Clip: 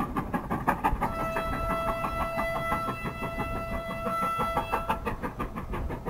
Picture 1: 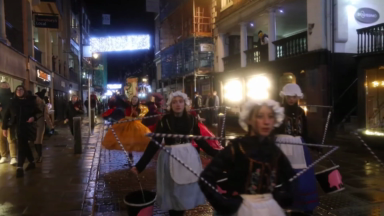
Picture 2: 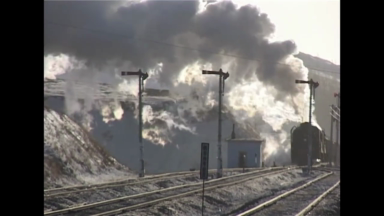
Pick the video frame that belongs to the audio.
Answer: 2